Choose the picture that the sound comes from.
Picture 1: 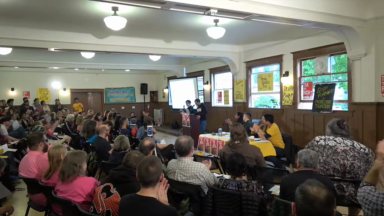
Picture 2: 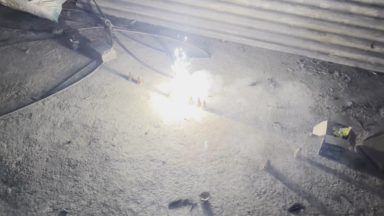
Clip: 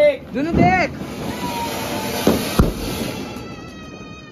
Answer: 2